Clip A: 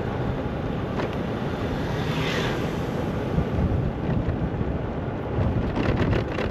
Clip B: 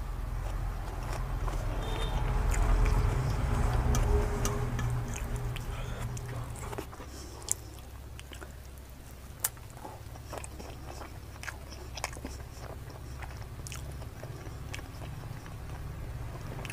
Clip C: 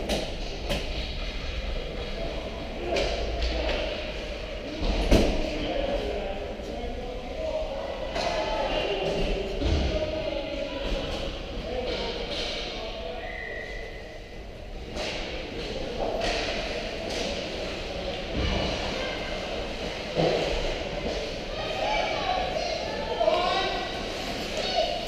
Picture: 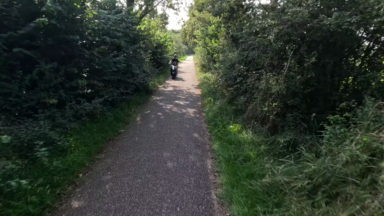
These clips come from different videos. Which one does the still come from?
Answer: A